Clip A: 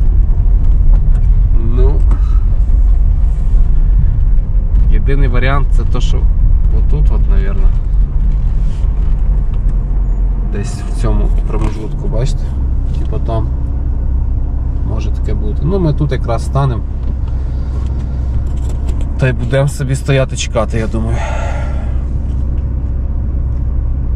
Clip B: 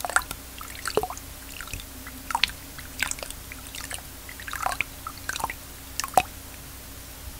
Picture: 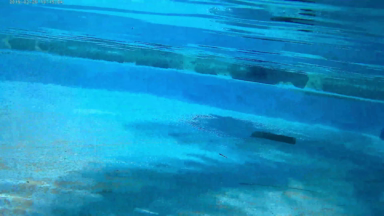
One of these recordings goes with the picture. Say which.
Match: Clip B